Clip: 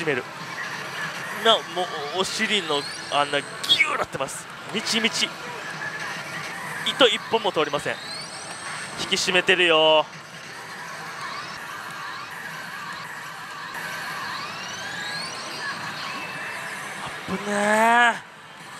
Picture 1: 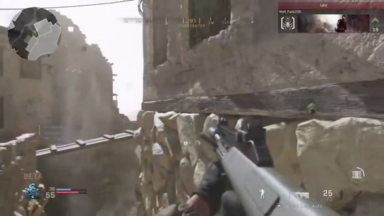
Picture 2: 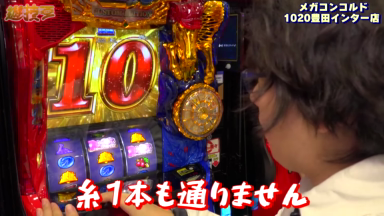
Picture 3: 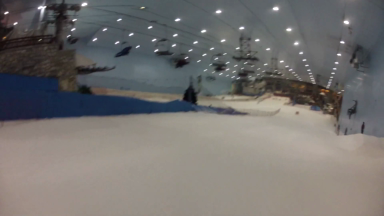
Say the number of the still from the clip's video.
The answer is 2